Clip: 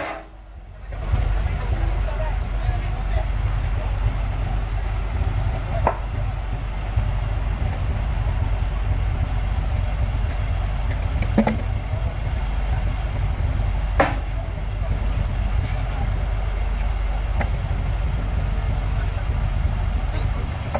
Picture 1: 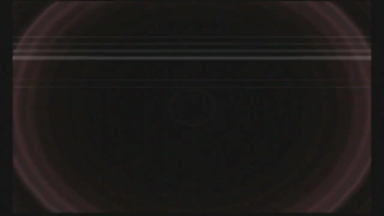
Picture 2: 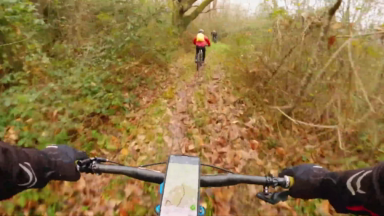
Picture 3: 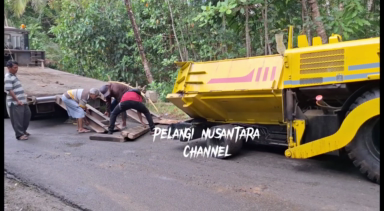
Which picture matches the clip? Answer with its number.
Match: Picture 3